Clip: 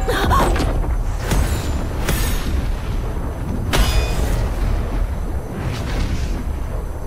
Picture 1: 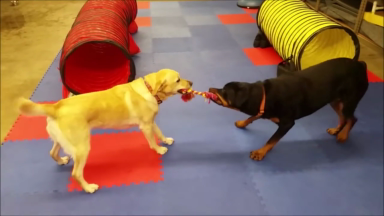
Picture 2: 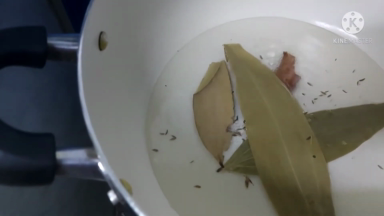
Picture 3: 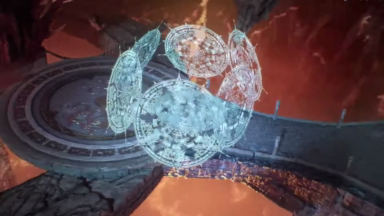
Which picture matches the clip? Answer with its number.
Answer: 3